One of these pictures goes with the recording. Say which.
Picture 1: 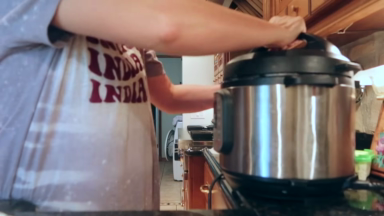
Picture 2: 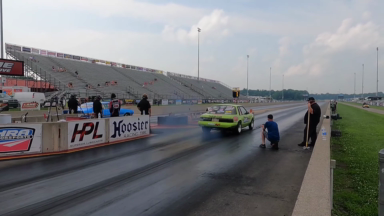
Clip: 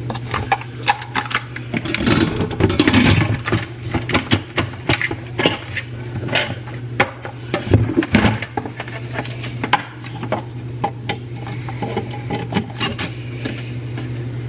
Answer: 1